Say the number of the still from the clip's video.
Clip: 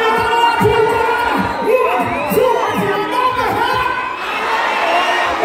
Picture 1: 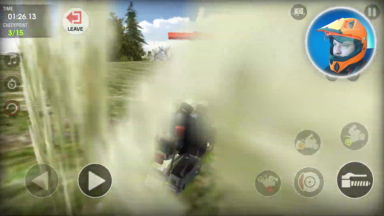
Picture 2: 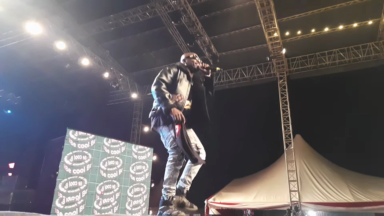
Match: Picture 2